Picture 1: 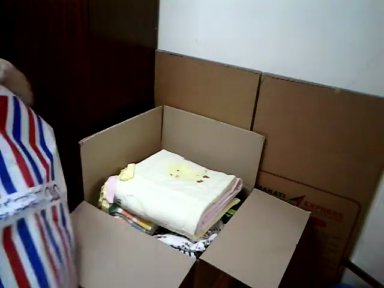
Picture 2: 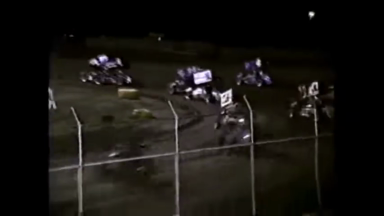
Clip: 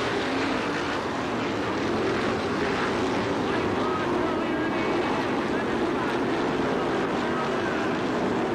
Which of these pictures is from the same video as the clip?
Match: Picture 2